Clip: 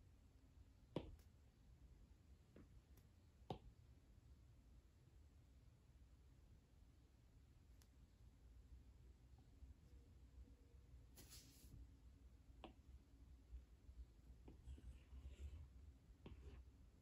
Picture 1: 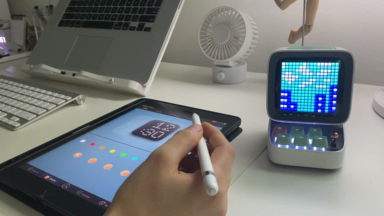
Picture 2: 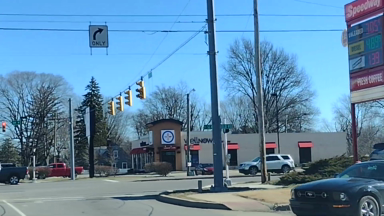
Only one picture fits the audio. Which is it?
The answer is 1